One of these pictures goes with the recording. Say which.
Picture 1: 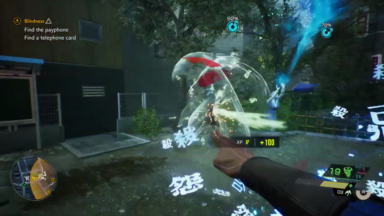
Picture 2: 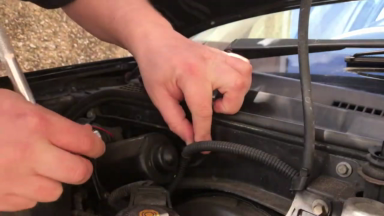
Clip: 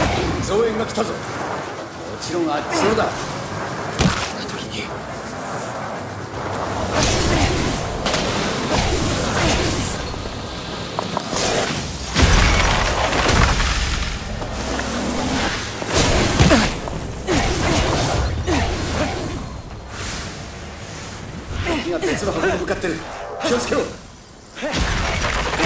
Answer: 1